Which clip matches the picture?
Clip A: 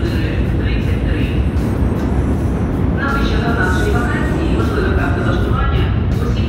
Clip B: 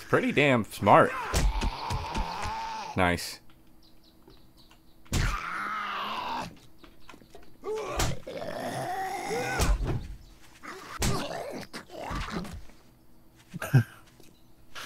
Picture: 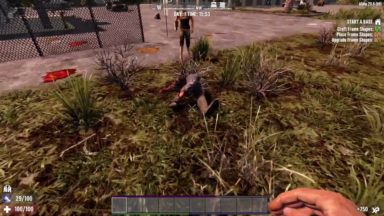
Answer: B